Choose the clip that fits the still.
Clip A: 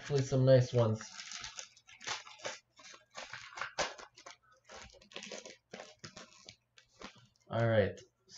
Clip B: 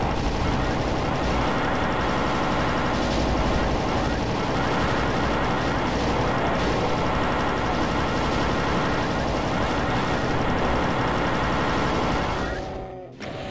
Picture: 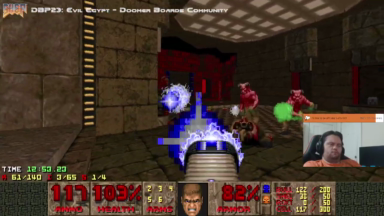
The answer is B